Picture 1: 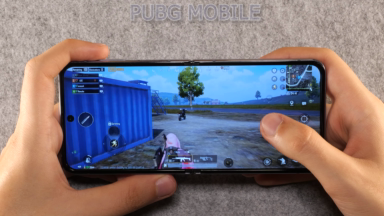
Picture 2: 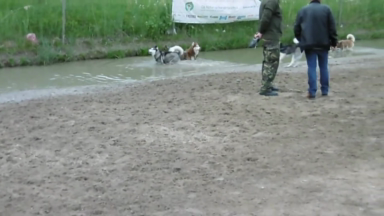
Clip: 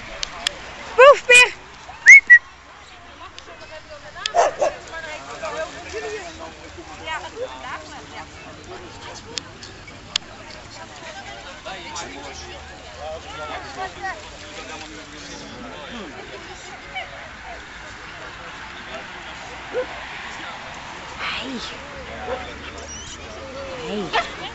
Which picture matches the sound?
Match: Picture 2